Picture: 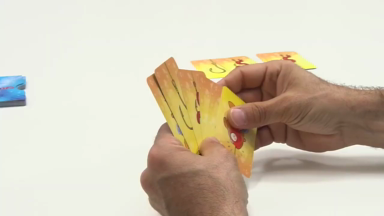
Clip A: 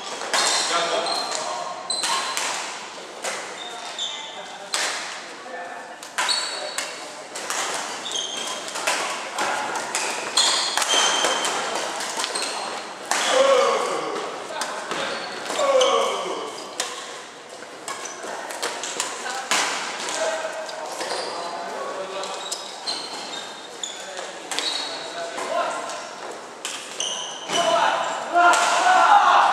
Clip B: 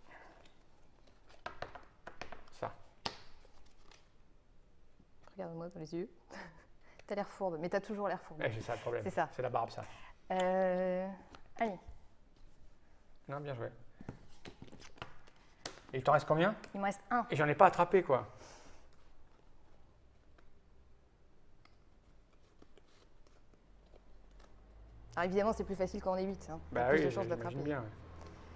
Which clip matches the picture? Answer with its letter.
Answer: B